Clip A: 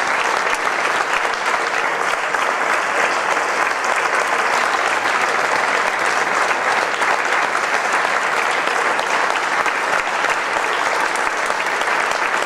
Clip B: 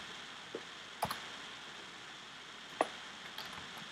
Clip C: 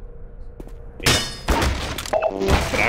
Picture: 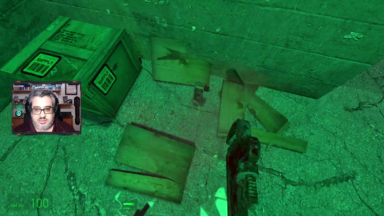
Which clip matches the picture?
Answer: C